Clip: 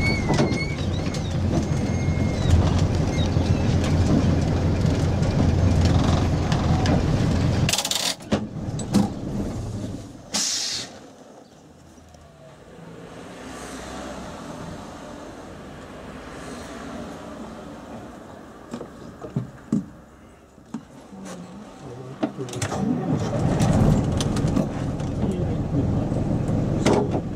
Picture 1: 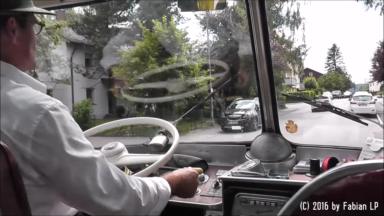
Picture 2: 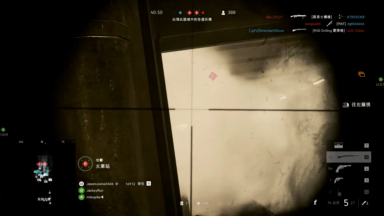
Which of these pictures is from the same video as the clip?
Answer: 1